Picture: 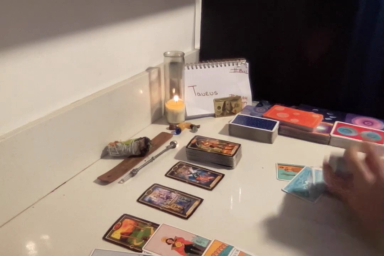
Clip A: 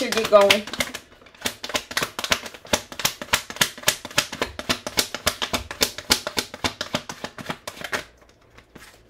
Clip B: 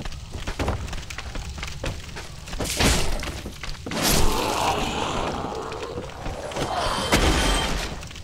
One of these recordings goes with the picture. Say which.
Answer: A